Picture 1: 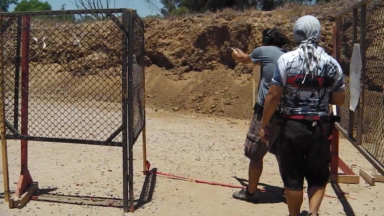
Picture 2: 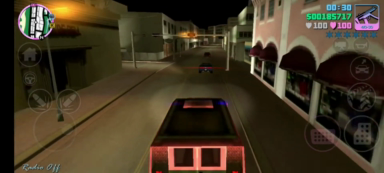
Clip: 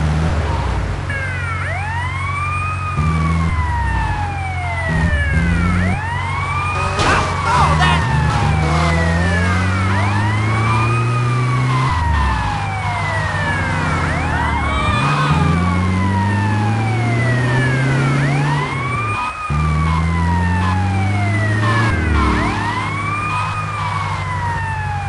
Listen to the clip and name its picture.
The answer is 2